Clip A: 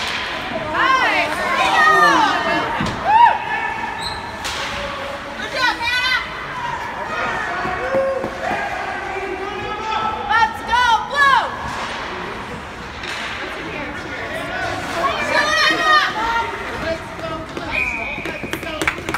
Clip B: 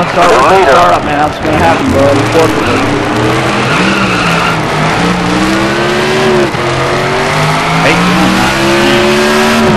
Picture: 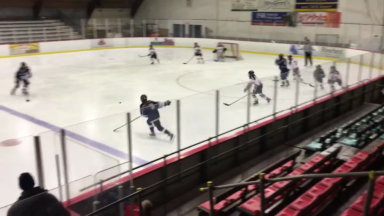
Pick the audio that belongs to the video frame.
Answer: A